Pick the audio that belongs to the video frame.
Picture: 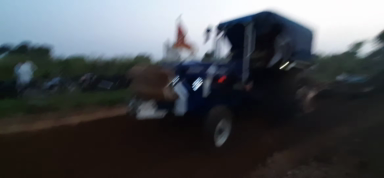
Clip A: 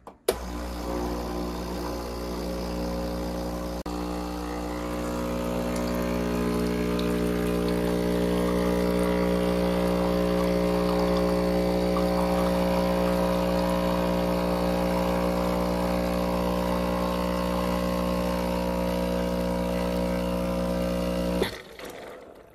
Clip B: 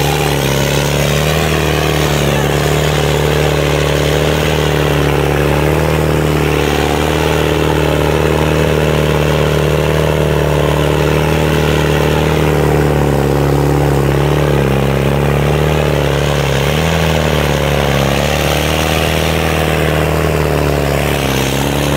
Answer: B